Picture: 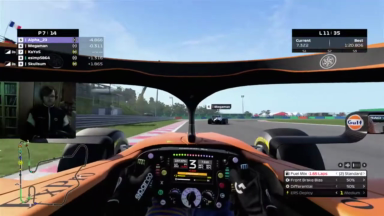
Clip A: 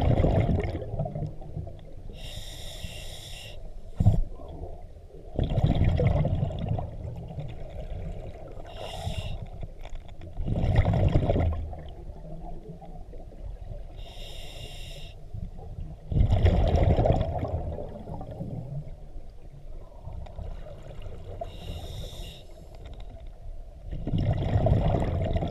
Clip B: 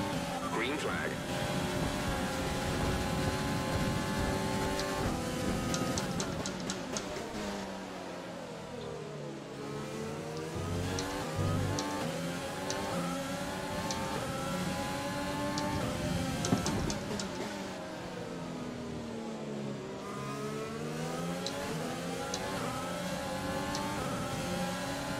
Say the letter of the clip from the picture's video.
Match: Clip B